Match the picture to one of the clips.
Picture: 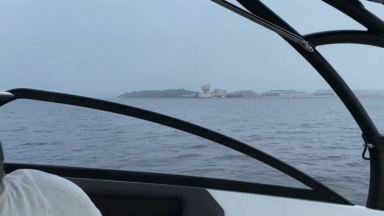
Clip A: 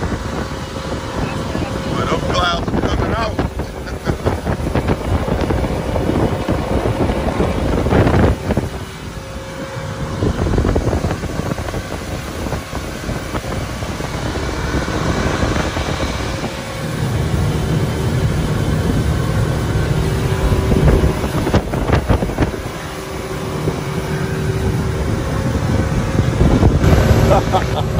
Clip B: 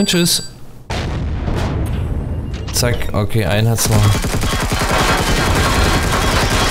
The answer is A